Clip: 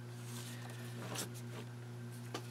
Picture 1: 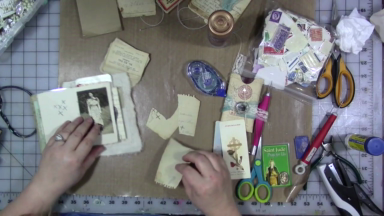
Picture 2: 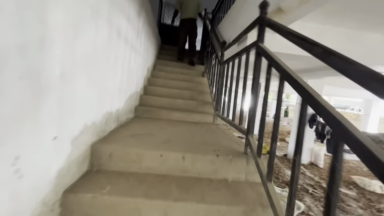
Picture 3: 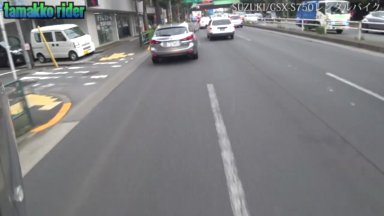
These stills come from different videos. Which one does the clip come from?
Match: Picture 1